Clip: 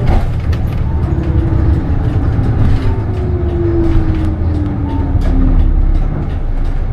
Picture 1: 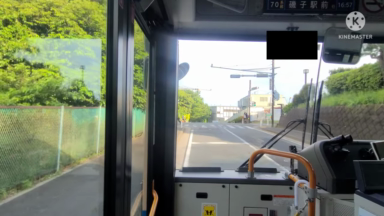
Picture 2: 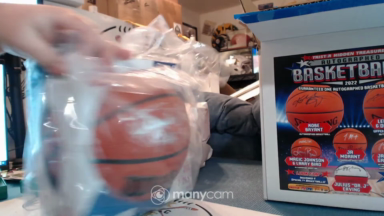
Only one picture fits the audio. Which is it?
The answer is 1